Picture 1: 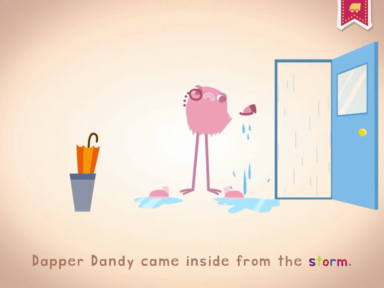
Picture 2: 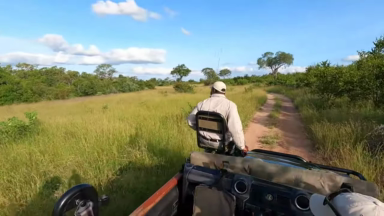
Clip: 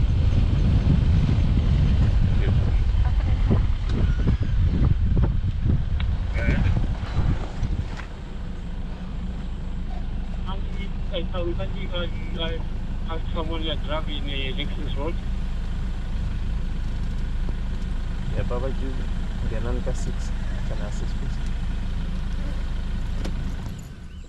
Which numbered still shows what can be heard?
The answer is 2